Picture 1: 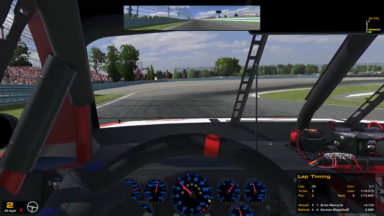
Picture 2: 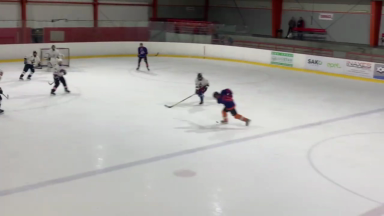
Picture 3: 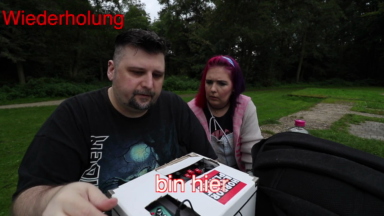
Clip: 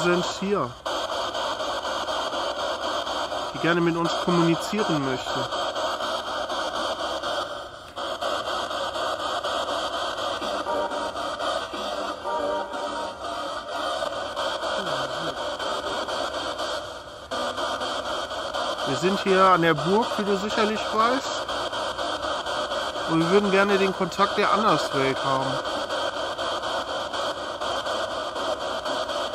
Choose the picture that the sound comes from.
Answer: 3